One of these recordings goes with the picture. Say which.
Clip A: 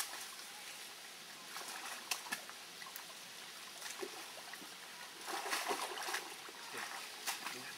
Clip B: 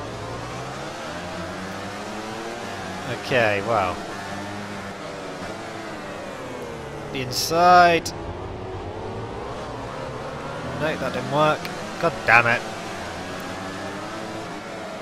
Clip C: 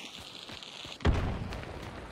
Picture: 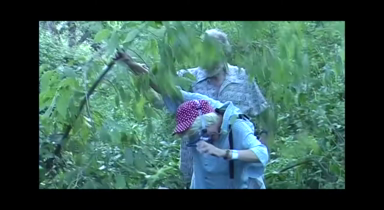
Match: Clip A